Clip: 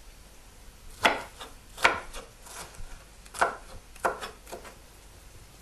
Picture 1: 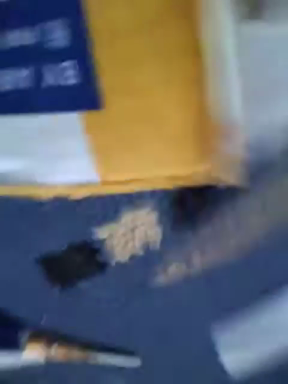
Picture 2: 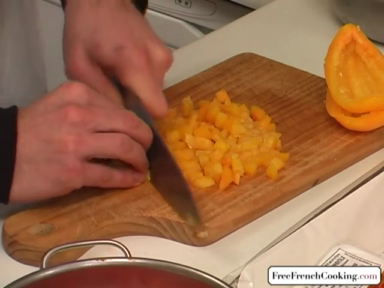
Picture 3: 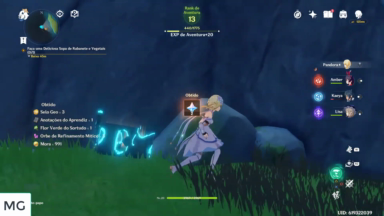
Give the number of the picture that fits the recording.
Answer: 2